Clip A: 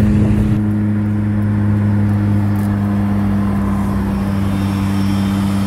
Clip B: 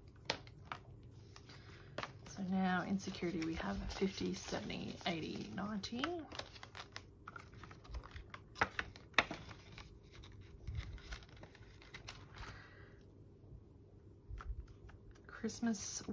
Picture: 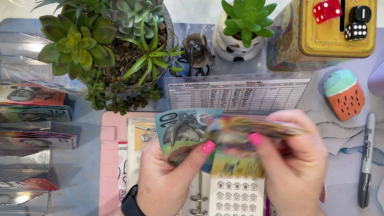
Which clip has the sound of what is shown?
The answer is B